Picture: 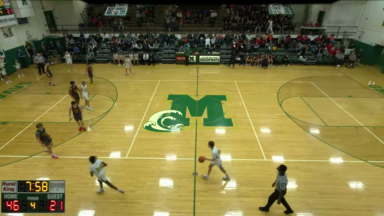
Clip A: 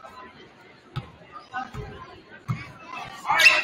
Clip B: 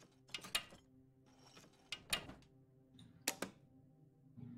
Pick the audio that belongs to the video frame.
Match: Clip A